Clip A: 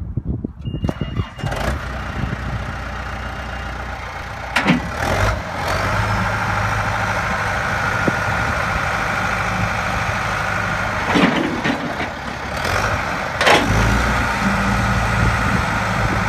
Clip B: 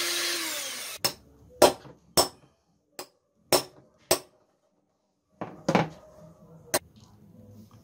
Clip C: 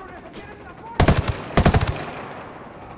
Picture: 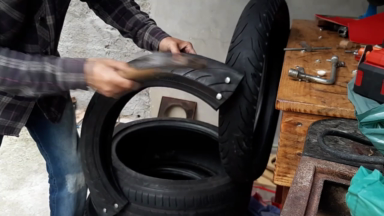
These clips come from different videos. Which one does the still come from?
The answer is B